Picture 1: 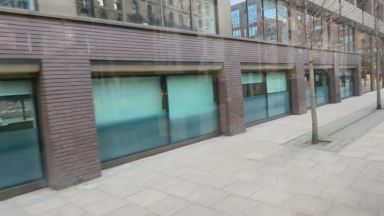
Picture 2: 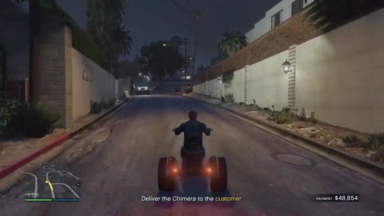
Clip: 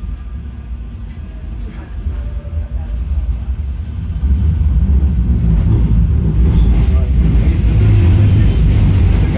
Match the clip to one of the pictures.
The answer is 1